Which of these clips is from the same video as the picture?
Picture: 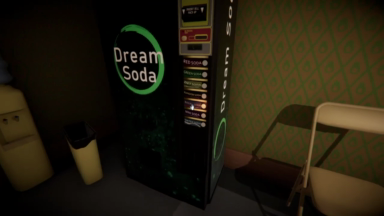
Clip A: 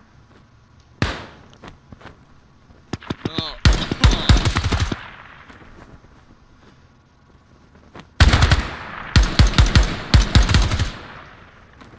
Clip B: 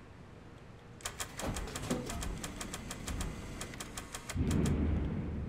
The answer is B